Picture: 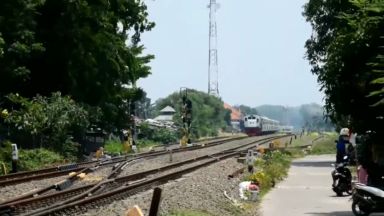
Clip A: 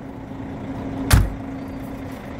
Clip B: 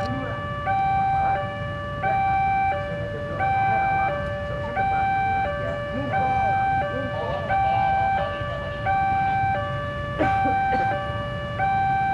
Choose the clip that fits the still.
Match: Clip B